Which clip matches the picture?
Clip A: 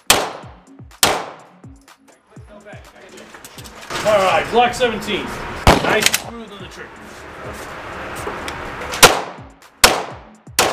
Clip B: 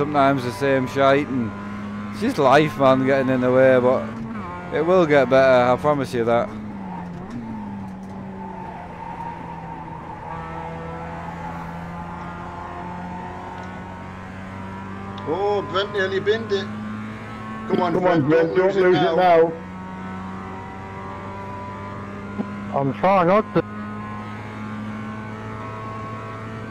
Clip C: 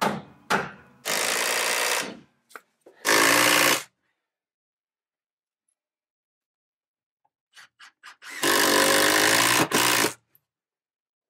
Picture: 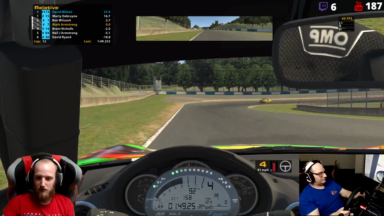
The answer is B